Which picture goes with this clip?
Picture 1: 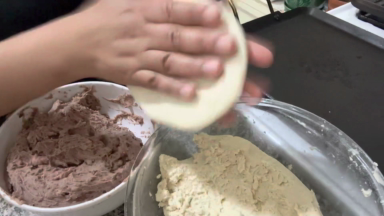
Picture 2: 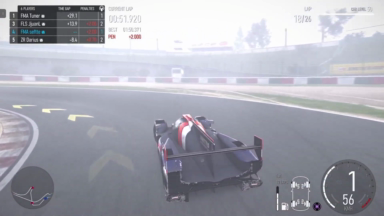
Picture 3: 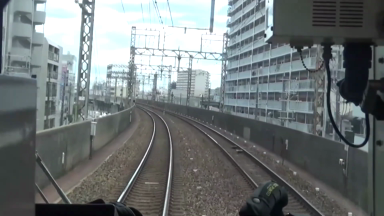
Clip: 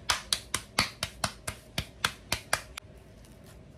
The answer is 1